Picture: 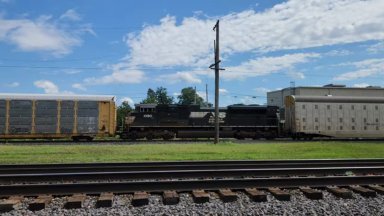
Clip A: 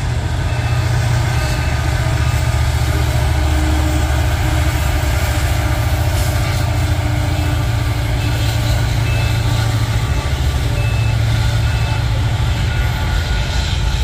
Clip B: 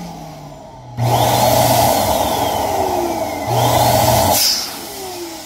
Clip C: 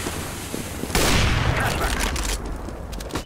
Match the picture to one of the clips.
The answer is A